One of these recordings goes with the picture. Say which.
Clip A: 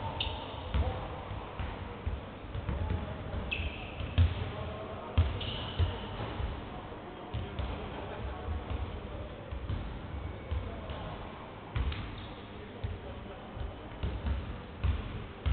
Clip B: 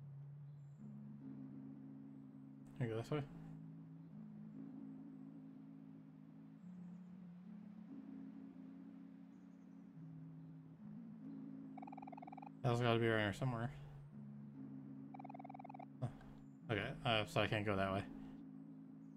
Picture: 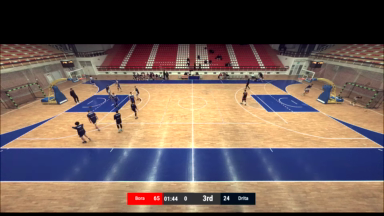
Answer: A